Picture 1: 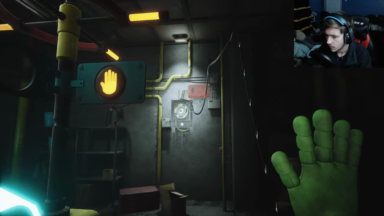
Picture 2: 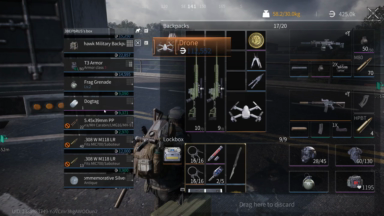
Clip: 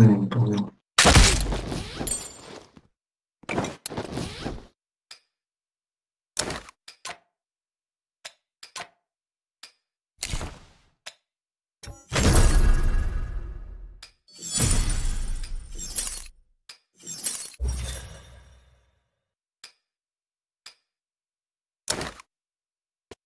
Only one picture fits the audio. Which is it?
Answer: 2